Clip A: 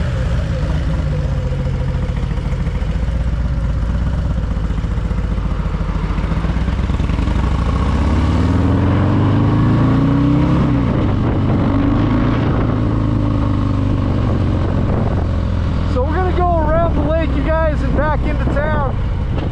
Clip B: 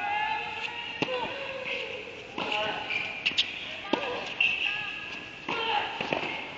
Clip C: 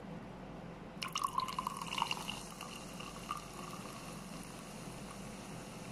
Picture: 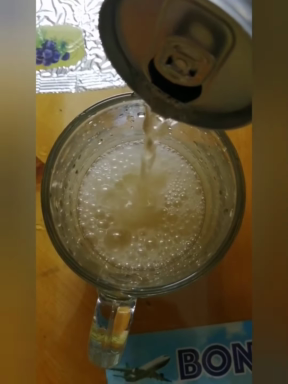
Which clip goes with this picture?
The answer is C